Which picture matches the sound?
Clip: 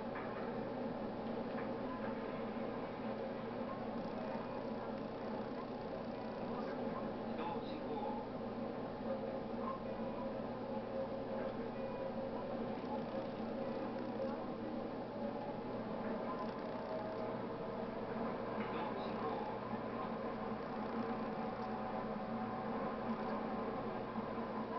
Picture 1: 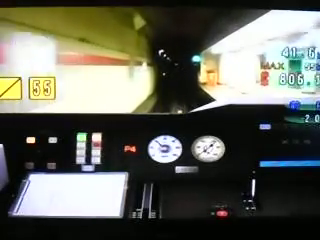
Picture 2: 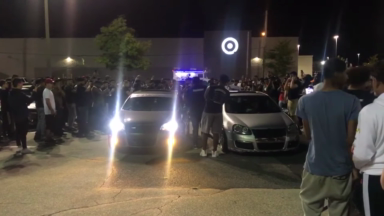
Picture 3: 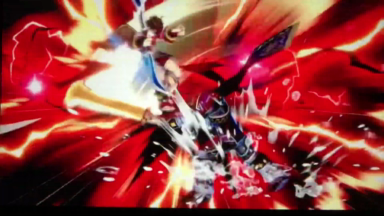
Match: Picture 1